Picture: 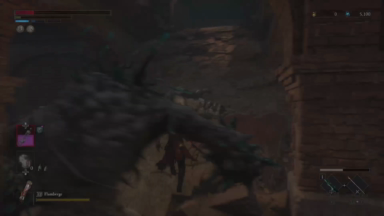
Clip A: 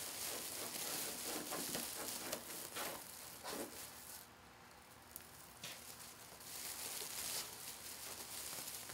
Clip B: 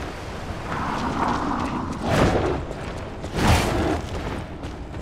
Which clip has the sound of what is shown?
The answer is B